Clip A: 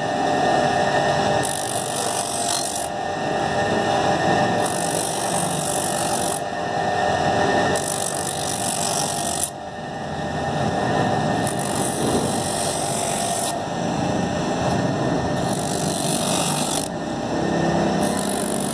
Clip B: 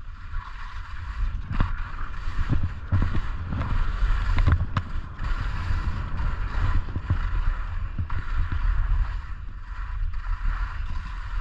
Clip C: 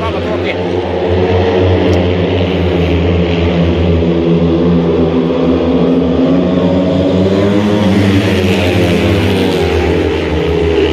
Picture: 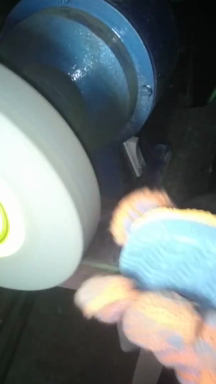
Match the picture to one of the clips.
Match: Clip A